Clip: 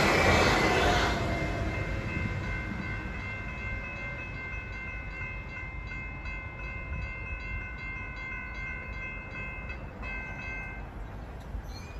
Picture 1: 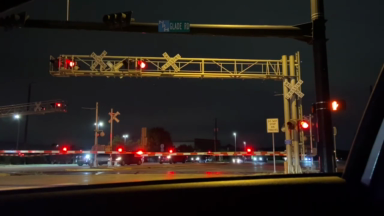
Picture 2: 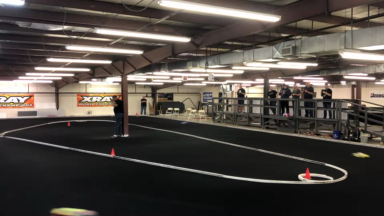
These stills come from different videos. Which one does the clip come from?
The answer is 1